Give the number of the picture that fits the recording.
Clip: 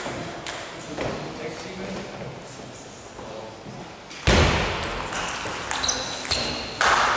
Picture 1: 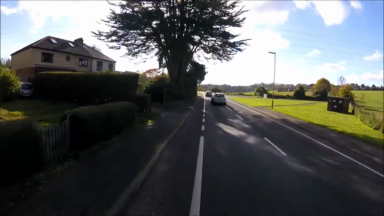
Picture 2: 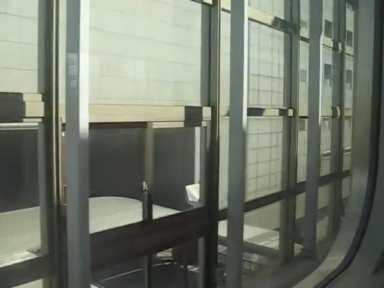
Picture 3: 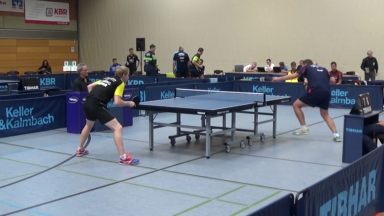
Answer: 3